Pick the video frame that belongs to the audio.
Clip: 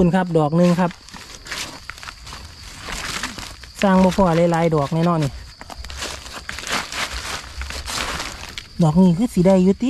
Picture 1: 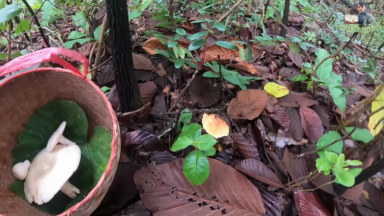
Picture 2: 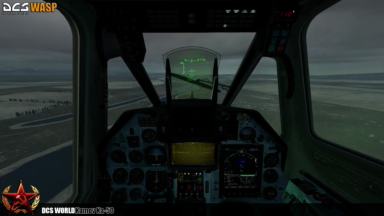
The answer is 1